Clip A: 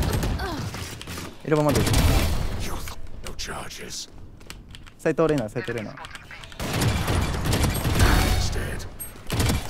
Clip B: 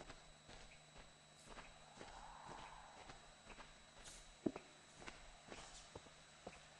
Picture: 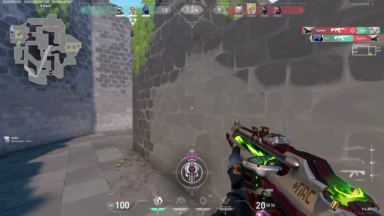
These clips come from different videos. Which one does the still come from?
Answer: A